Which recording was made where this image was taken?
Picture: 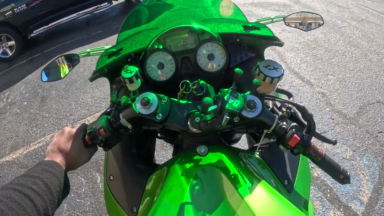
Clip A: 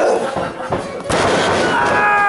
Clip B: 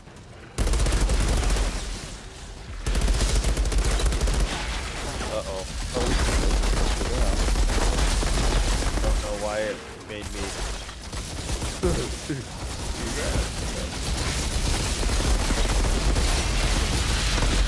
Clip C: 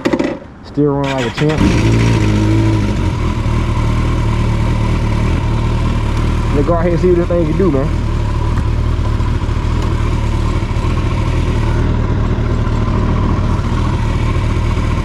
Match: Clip C